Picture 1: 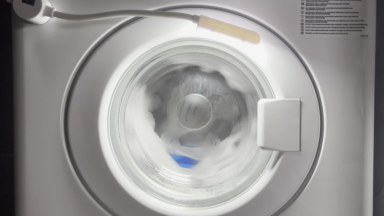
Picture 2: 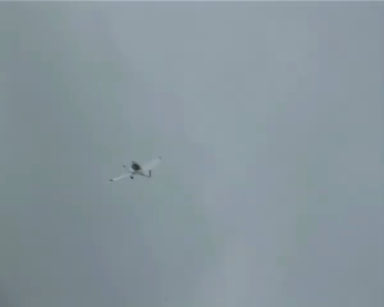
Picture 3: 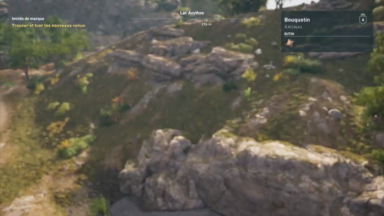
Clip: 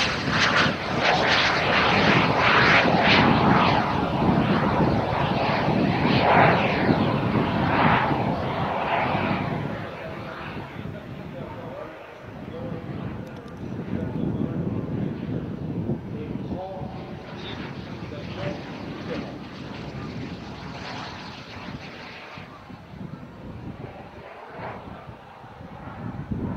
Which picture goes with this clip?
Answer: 2